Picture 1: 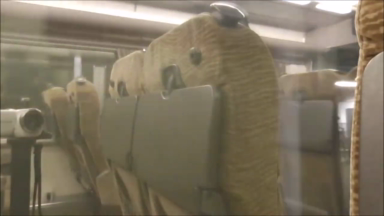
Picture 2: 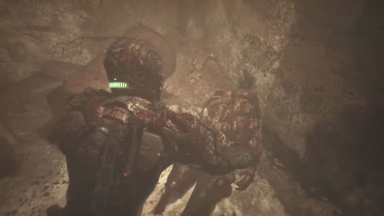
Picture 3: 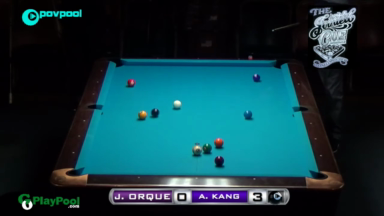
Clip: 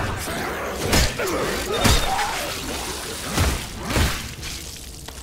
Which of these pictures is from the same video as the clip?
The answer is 2